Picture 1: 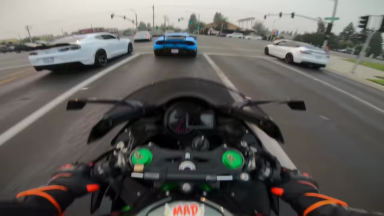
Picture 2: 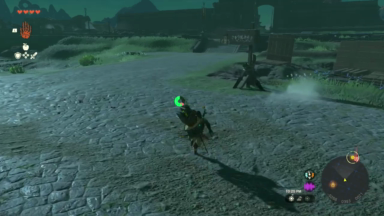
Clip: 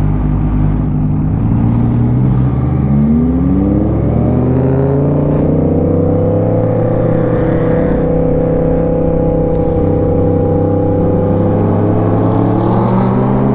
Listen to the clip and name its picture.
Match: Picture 1